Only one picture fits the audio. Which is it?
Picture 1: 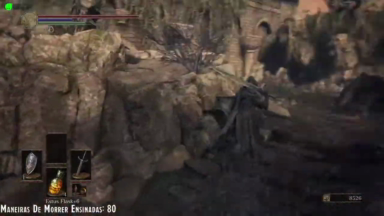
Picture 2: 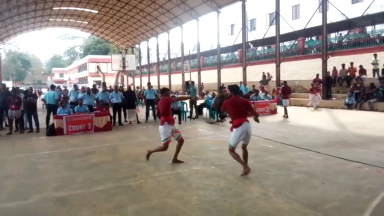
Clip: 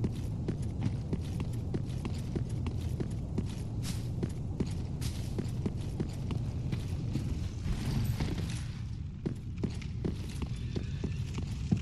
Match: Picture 1